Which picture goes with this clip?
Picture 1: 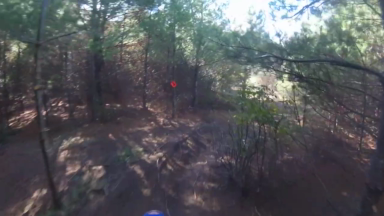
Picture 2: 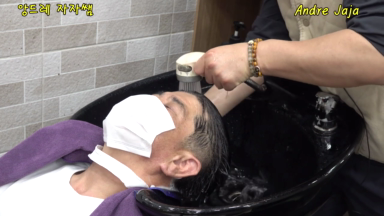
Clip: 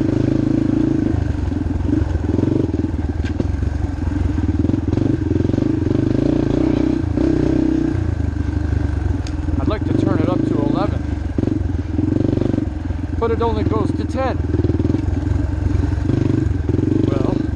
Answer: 1